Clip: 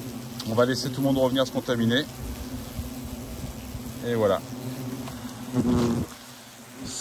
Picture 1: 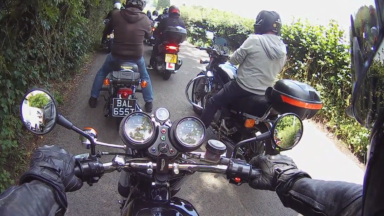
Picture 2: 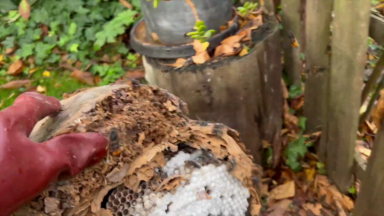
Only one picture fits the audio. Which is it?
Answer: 2